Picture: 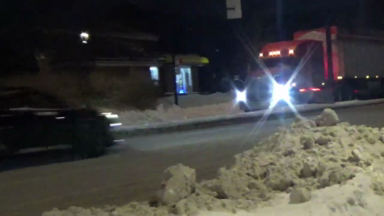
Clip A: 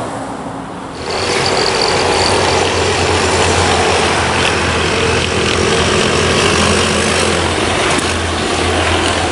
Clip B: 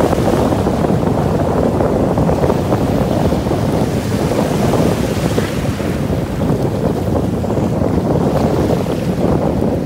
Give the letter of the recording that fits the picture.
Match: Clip A